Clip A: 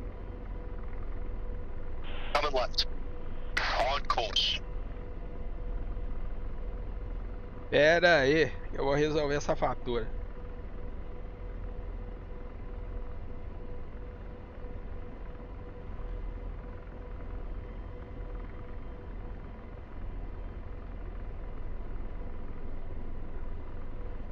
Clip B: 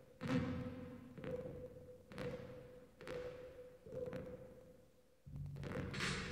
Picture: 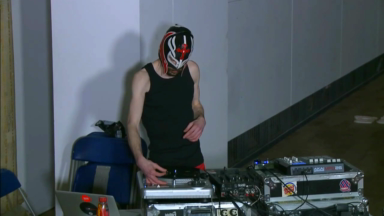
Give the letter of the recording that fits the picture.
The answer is B